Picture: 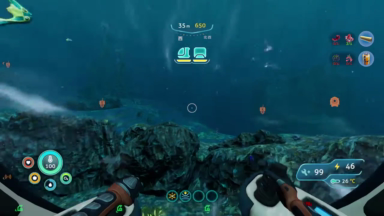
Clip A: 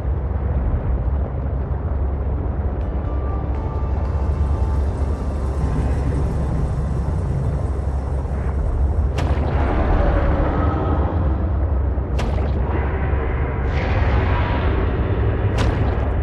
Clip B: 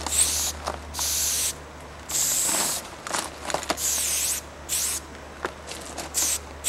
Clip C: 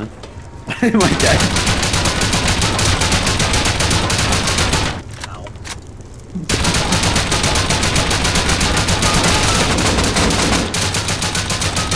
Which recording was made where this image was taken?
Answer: A